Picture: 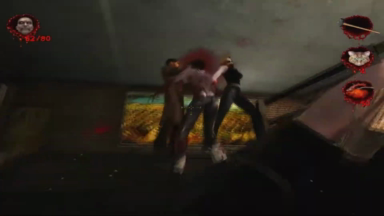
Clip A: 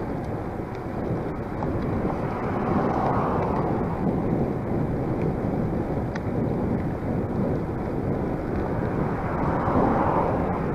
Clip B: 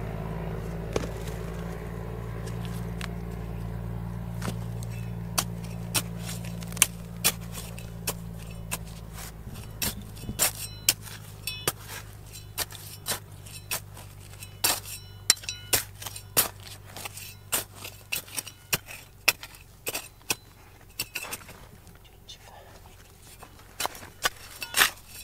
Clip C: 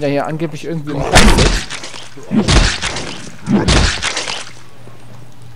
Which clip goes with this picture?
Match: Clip C